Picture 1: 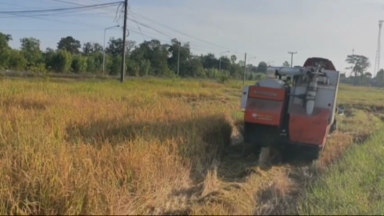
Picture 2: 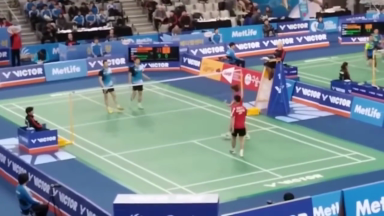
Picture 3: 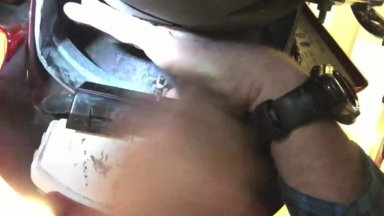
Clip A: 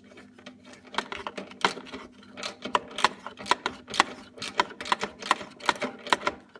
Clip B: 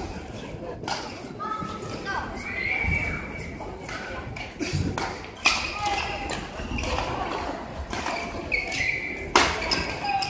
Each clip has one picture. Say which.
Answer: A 3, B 2